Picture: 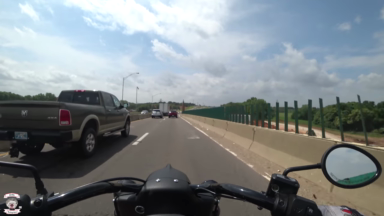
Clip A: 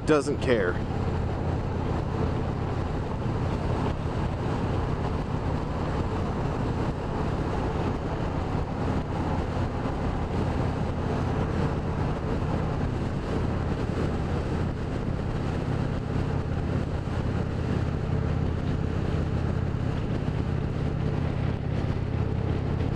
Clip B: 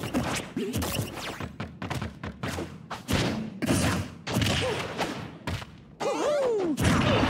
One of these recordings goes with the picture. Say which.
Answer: A